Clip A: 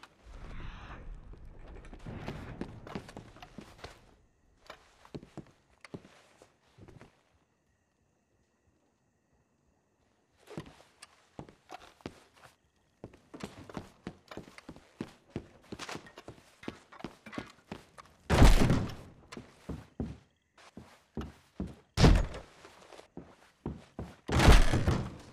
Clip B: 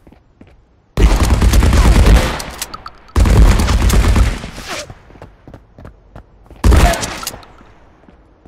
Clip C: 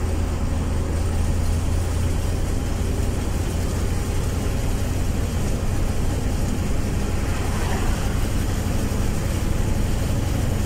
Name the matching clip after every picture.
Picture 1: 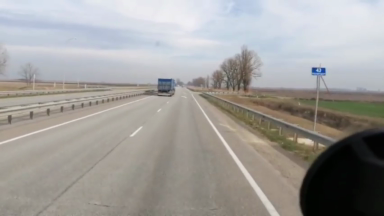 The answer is C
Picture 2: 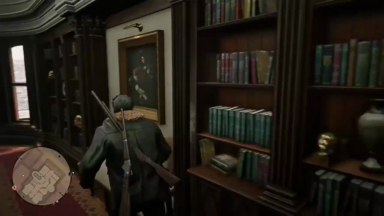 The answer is A